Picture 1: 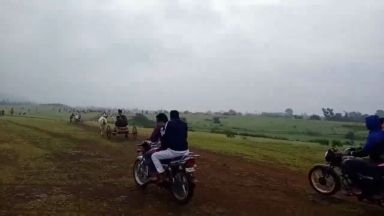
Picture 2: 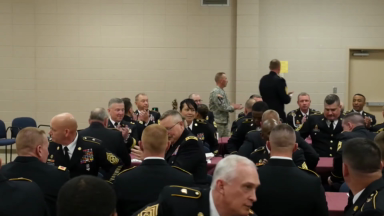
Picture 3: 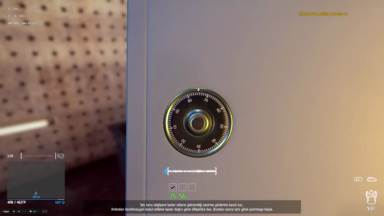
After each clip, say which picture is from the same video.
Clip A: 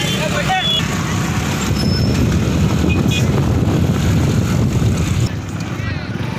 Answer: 1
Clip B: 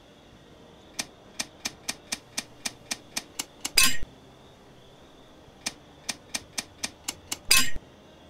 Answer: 3